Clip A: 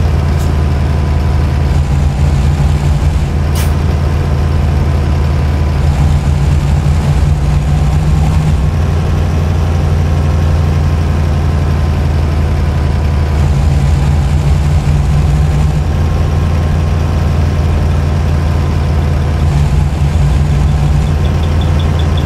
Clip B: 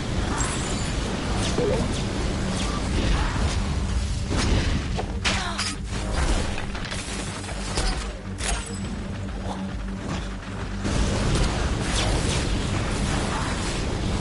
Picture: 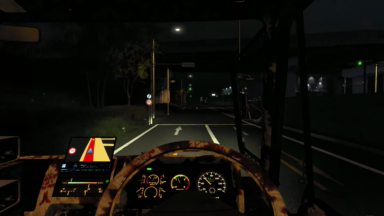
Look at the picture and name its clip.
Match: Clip A